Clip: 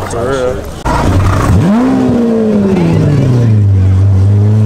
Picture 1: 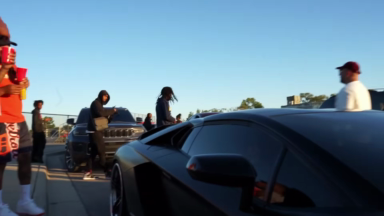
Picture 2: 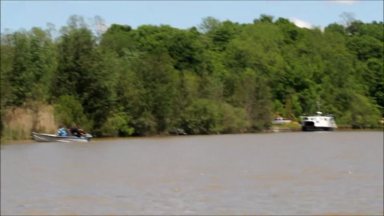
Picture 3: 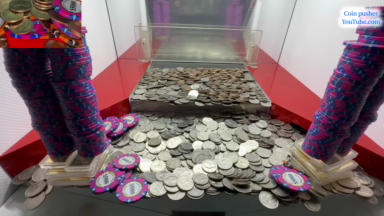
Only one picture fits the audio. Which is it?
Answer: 1